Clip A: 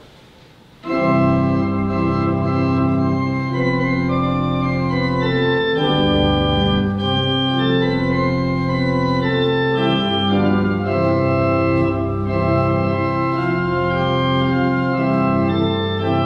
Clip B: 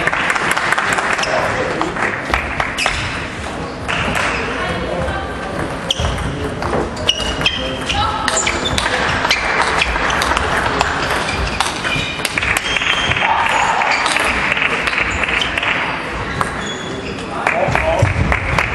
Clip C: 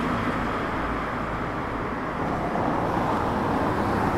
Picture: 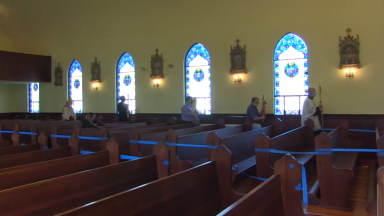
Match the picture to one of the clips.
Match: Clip A